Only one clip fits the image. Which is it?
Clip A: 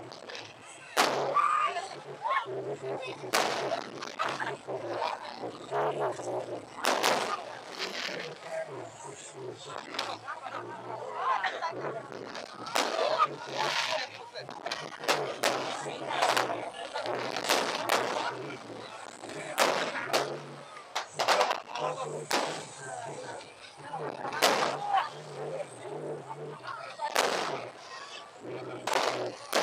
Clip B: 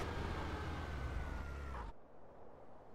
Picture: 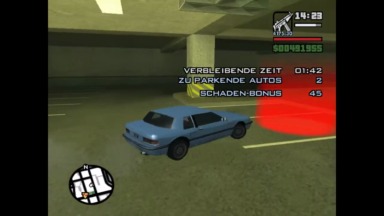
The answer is B